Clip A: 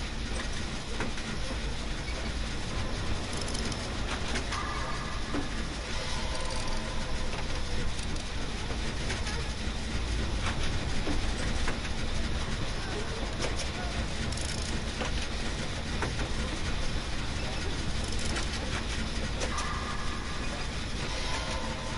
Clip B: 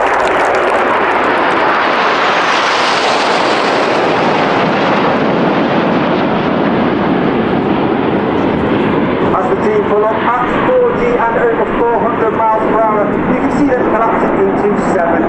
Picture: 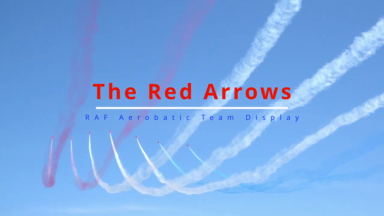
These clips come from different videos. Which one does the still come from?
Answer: B